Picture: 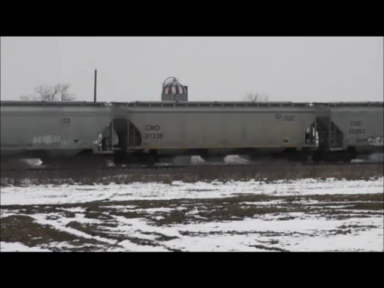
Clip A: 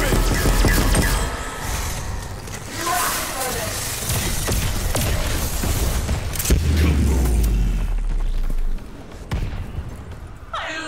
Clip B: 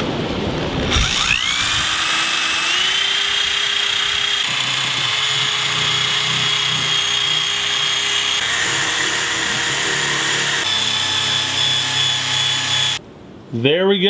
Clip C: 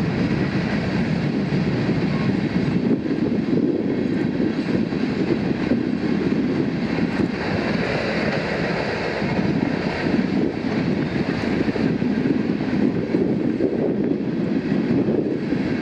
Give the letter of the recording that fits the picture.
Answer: C